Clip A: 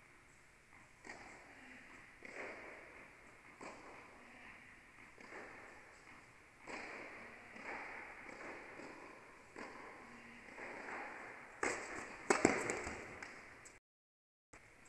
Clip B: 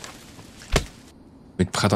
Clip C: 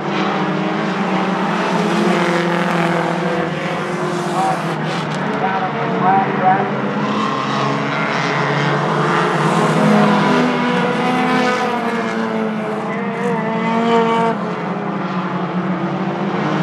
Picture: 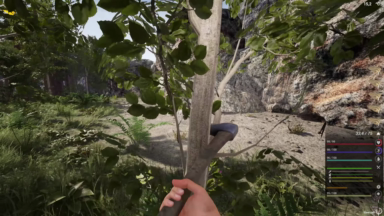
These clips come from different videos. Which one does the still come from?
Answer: B